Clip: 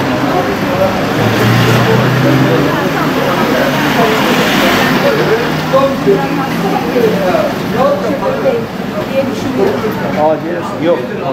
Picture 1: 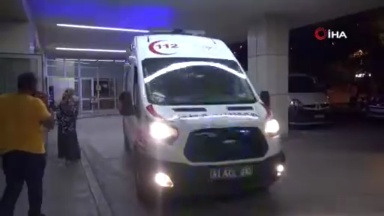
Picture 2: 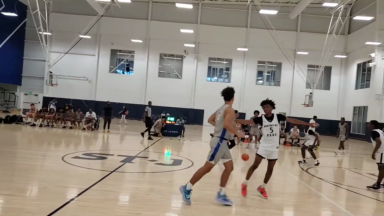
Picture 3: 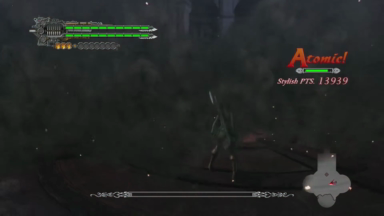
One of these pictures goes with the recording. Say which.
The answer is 1